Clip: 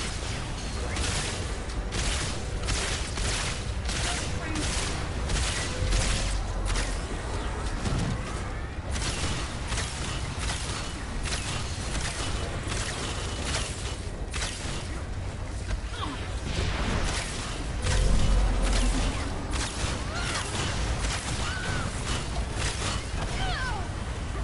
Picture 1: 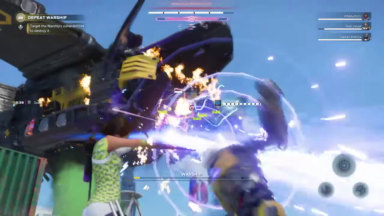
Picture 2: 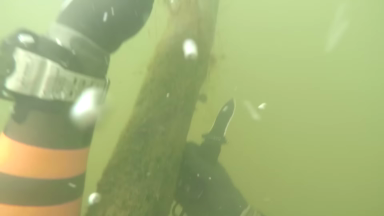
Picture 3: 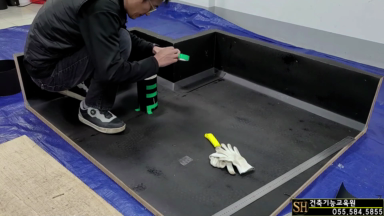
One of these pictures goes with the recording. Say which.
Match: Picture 1